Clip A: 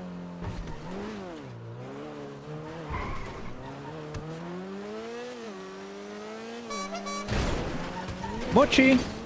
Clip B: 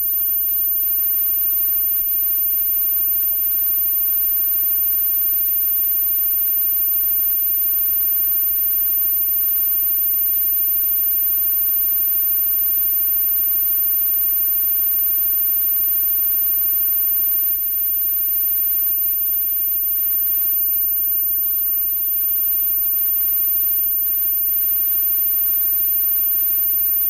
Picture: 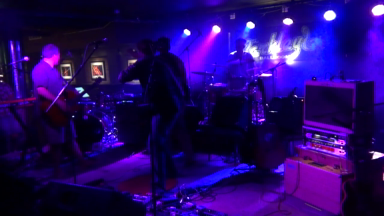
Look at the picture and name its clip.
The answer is B